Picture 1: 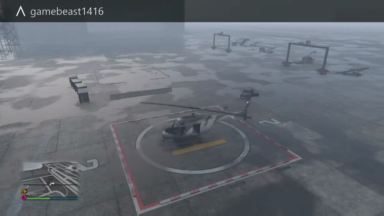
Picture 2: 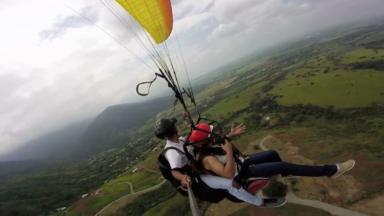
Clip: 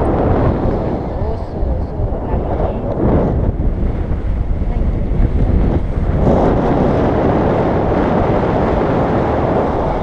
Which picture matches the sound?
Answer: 2